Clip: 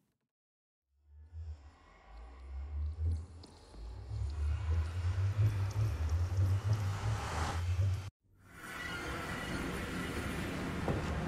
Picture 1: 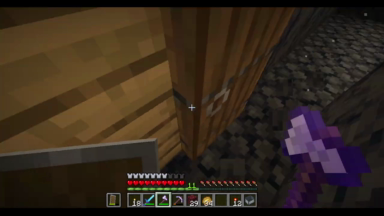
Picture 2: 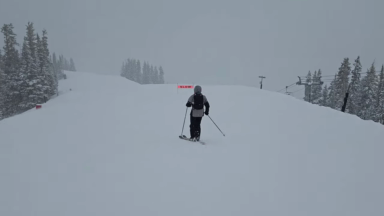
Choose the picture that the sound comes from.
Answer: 1